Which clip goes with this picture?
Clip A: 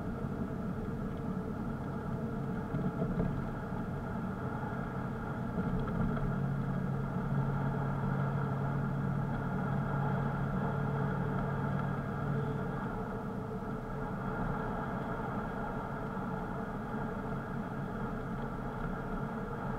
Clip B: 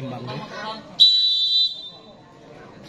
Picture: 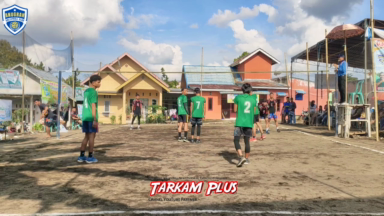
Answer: B